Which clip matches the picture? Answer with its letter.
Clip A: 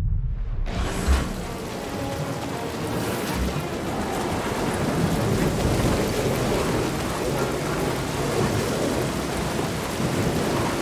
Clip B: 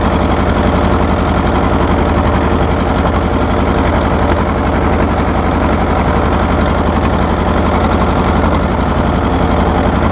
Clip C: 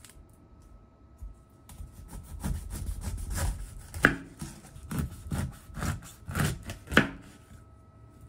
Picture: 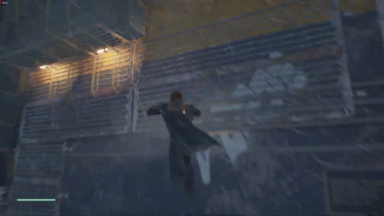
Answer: A